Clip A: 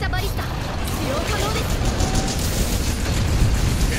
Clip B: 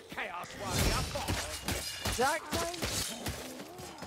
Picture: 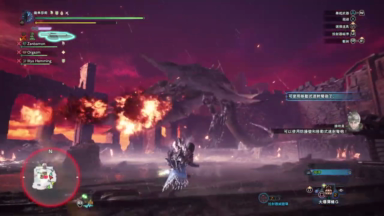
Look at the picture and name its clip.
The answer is A